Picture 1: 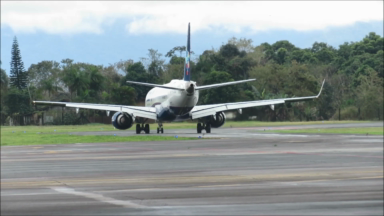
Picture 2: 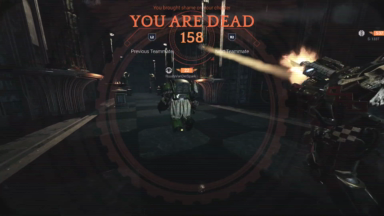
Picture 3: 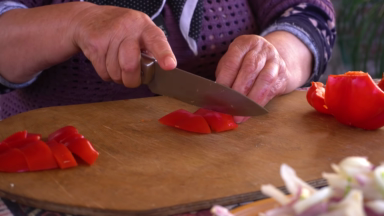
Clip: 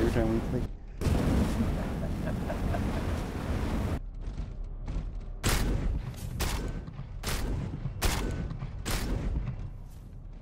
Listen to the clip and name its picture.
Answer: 2